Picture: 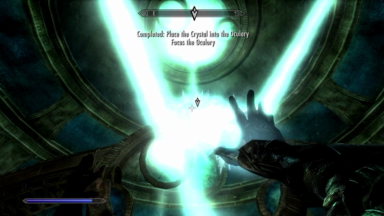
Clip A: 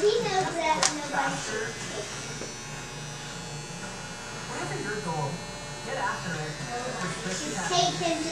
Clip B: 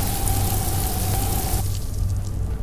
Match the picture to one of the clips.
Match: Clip B